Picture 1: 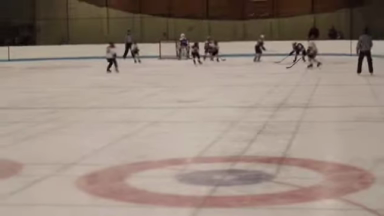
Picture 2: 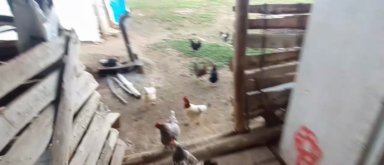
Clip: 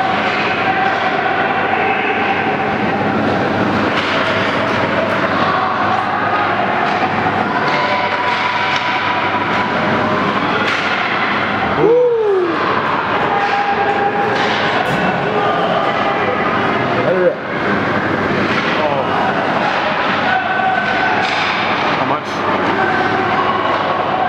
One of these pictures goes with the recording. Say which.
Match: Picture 1